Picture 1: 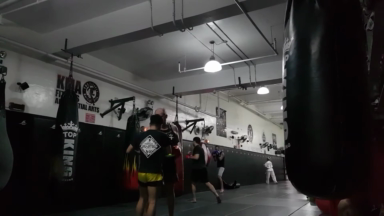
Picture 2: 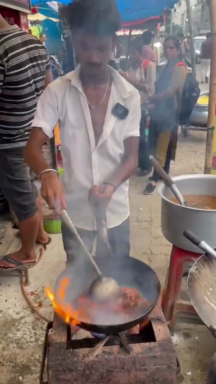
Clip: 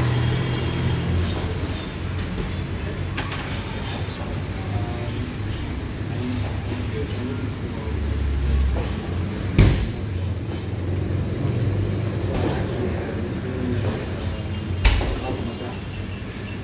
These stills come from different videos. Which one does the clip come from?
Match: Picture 1